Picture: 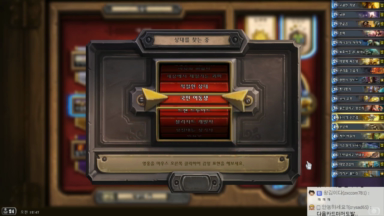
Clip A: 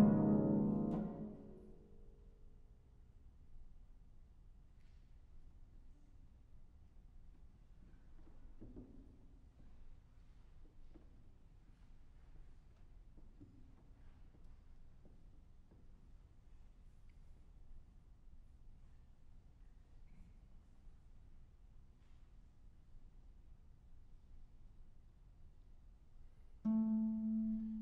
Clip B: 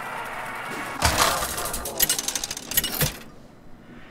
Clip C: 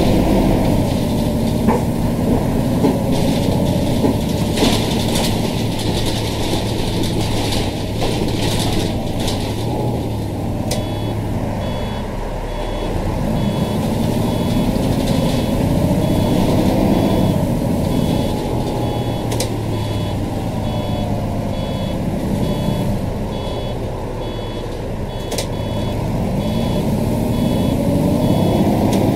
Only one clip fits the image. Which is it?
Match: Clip B